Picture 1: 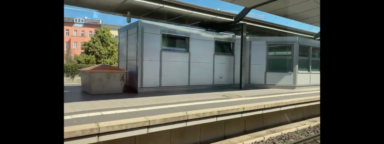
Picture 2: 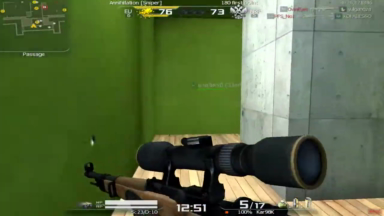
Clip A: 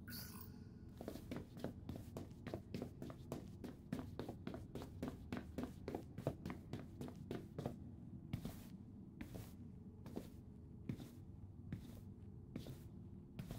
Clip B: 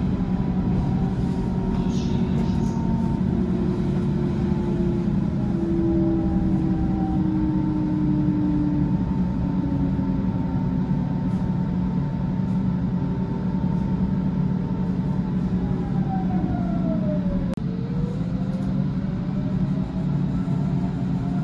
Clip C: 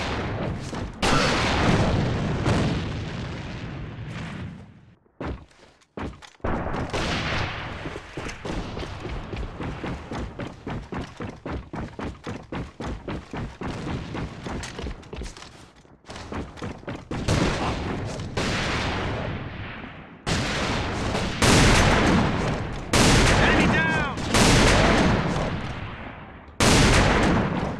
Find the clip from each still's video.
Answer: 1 B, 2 C